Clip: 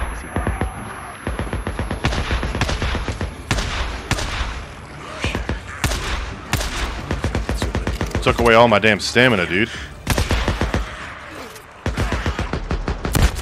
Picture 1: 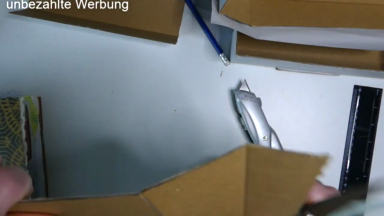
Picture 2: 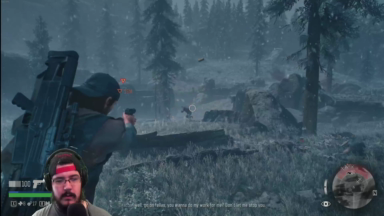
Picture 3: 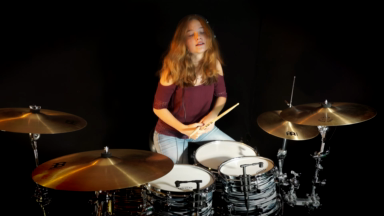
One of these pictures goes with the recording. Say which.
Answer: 2